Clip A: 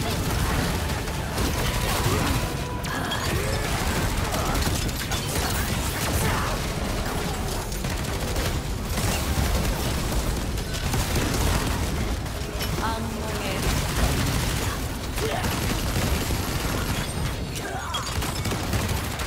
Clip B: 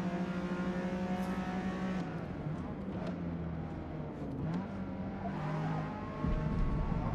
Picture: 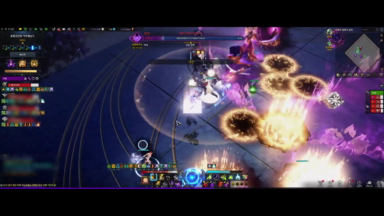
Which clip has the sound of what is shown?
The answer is A